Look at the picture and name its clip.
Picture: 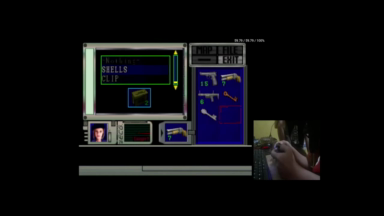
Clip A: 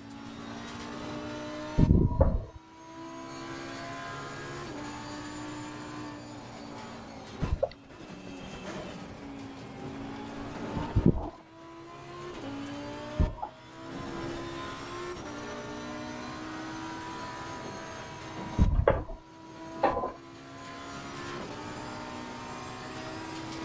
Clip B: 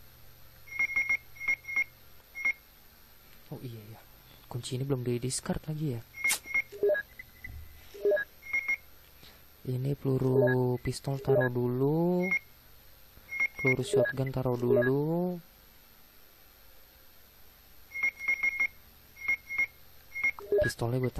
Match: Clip B